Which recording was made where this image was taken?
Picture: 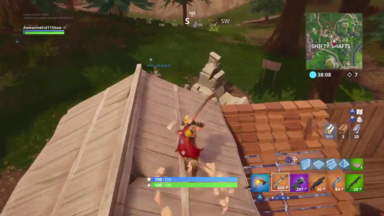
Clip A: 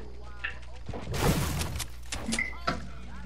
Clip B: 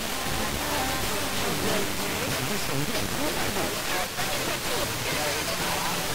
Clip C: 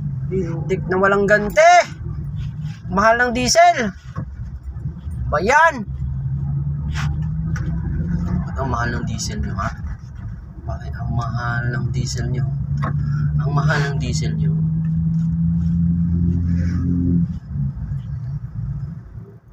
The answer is A